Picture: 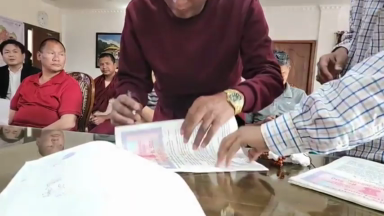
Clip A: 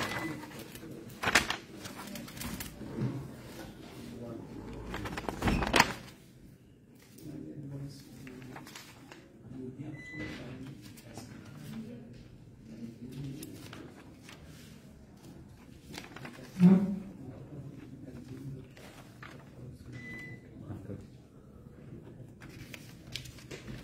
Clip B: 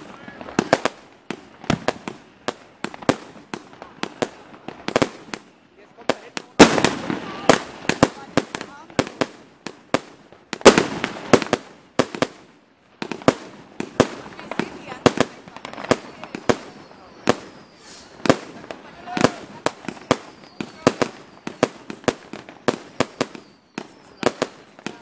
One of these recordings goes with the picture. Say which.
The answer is A